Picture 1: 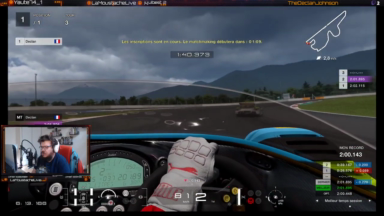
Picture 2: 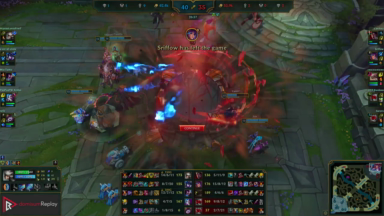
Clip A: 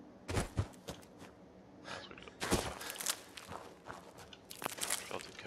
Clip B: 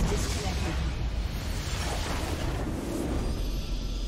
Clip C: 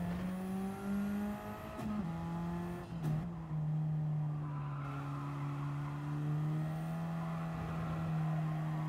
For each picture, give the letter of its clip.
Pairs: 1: C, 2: B